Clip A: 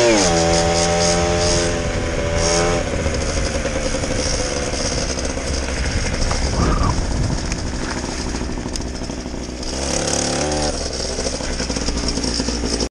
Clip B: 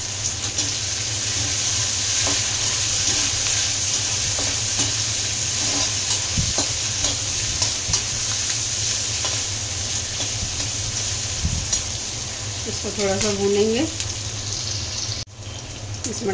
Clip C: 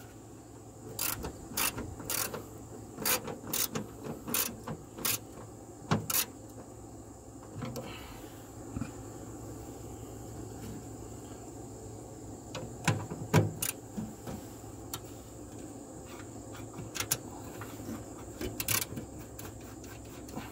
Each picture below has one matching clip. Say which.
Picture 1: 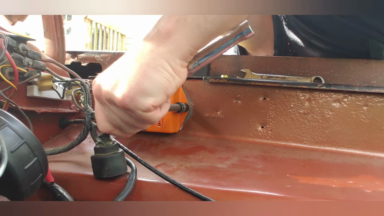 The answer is C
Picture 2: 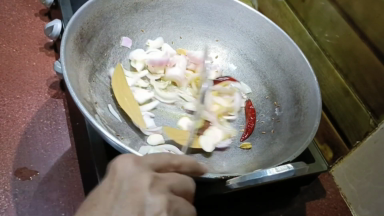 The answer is B